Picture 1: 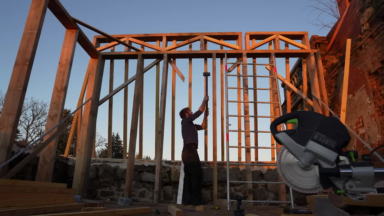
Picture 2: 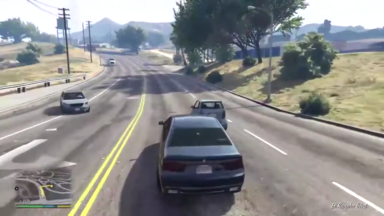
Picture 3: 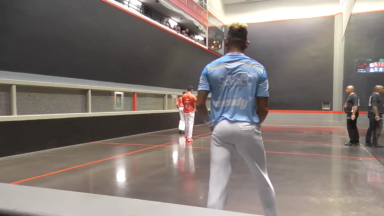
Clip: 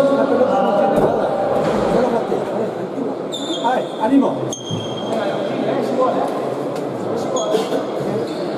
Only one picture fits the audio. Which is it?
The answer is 3